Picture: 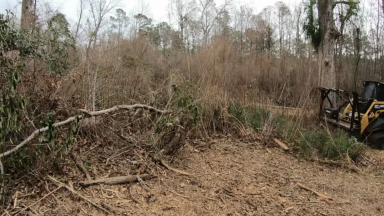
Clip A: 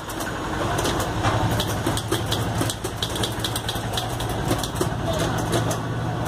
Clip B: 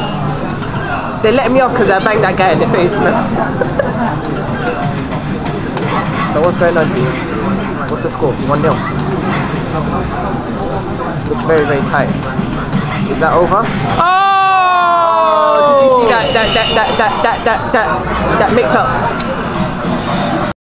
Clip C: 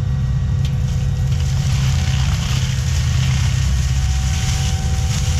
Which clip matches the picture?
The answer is C